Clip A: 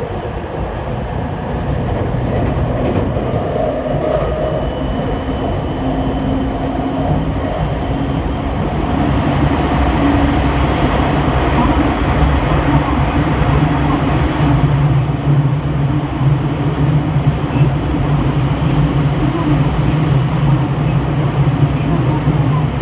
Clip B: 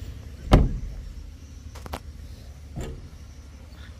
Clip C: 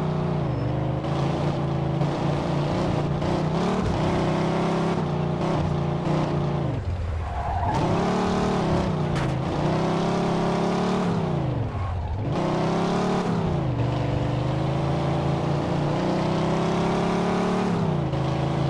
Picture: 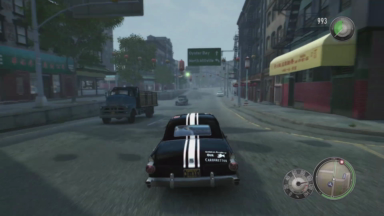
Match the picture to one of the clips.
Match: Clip C